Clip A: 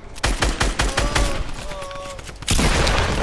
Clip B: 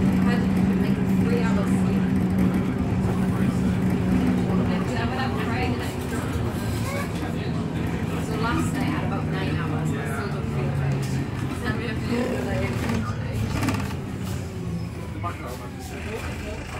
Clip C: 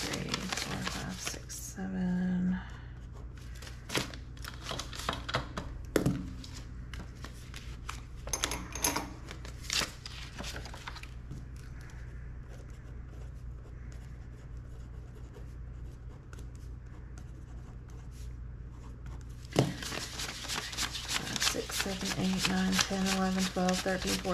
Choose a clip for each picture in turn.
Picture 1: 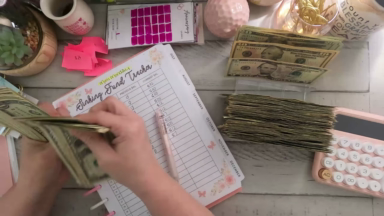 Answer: C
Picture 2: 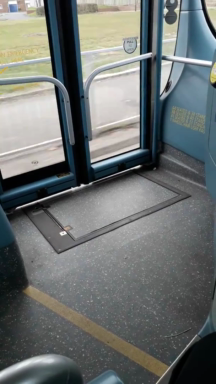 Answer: B